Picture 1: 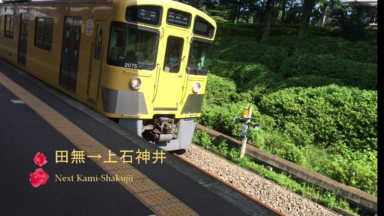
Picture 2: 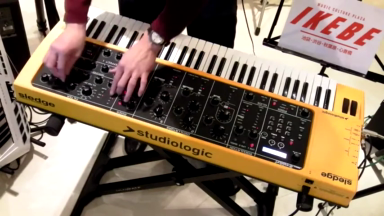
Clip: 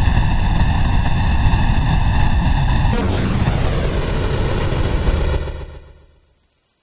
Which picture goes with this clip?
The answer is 2